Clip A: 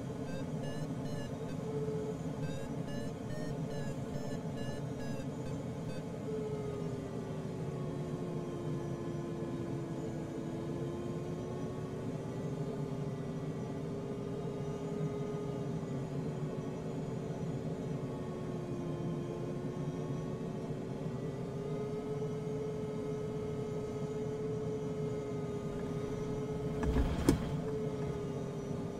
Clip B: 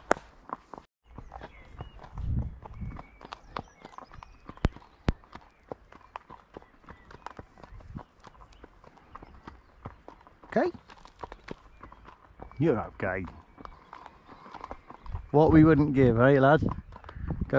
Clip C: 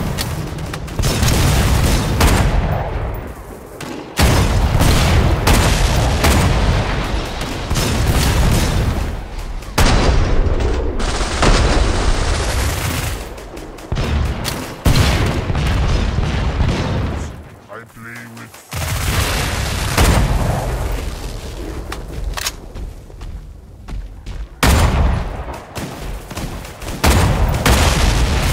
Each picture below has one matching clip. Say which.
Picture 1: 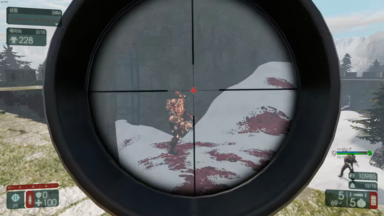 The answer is C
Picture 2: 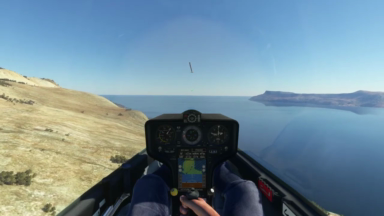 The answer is A